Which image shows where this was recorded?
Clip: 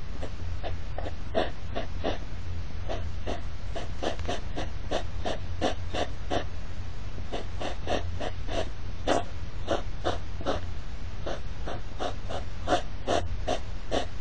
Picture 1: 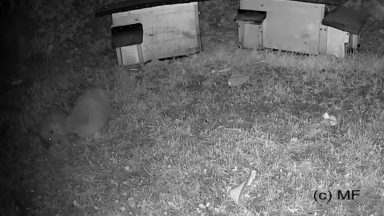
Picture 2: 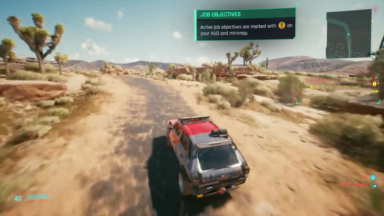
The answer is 1